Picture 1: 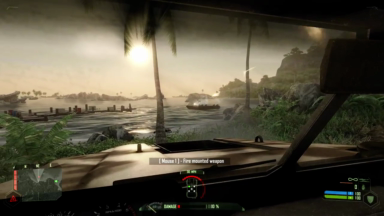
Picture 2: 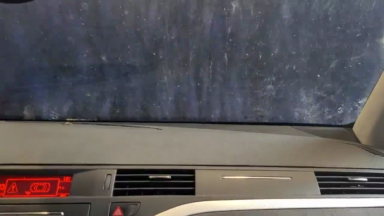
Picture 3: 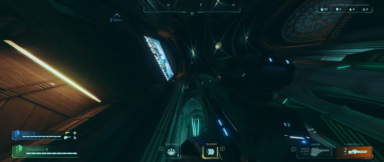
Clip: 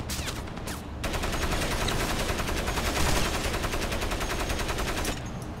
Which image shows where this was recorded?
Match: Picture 1